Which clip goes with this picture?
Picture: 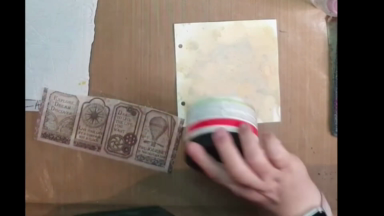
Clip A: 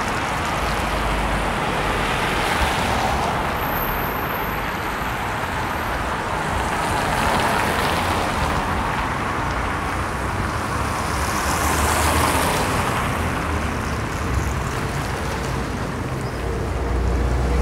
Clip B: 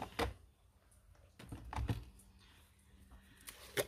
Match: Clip B